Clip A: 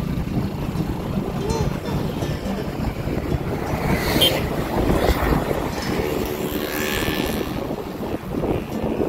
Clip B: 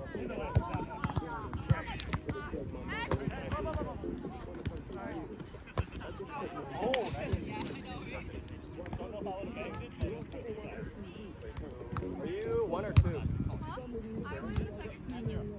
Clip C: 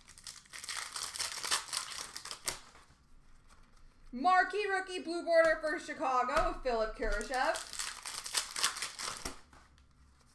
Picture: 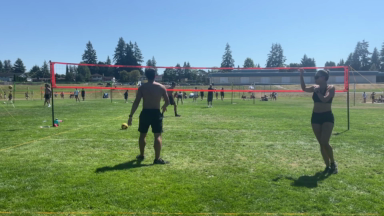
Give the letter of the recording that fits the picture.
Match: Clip B